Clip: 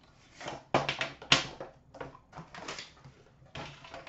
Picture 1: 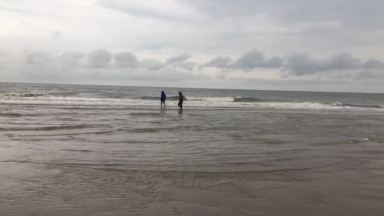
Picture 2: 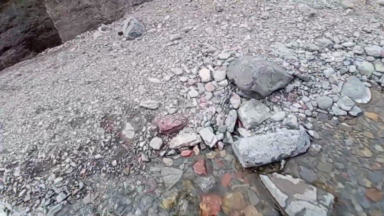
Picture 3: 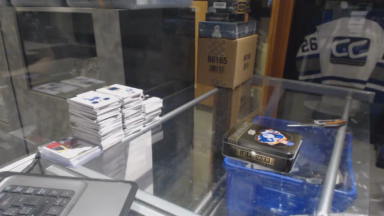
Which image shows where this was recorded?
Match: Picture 3